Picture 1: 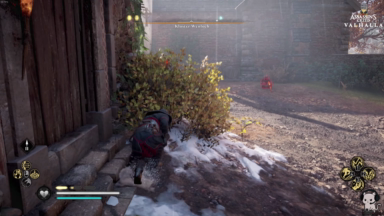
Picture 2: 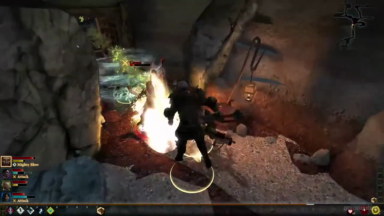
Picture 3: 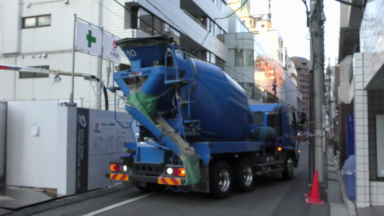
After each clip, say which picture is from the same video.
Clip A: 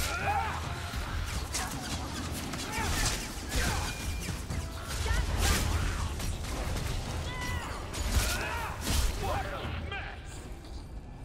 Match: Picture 2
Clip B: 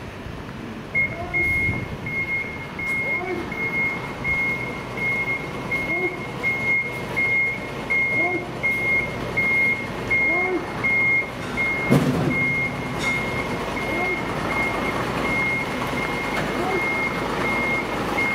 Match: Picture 3